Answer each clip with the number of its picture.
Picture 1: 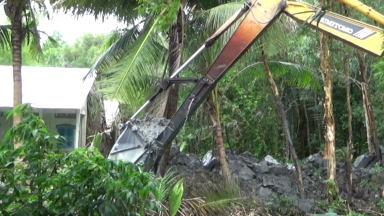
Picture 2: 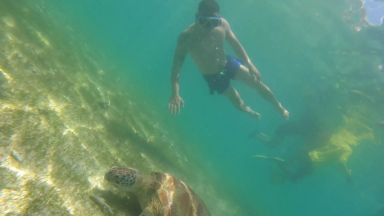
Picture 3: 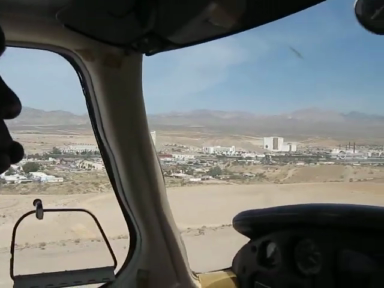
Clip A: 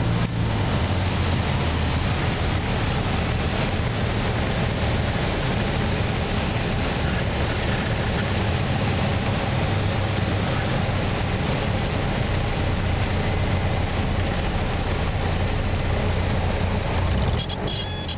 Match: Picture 3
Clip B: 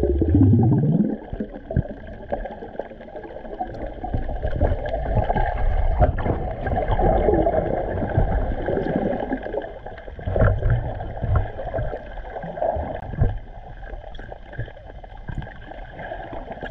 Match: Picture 2